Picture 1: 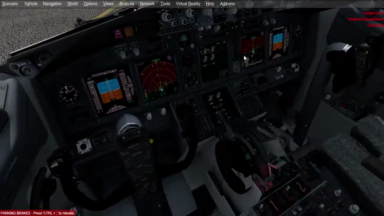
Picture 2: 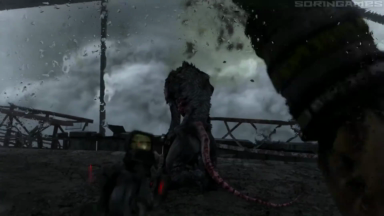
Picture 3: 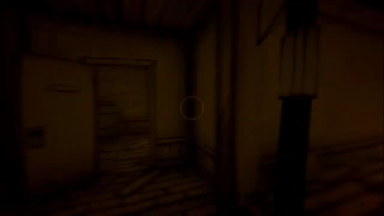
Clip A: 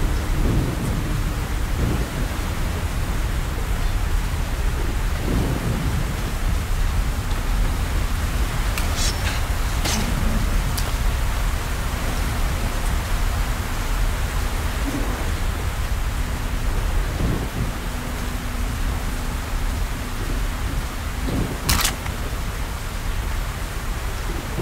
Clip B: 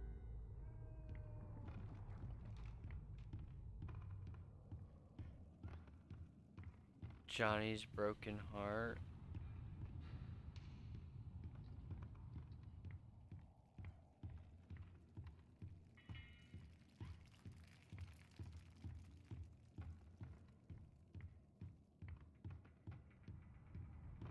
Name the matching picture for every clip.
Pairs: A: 2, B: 3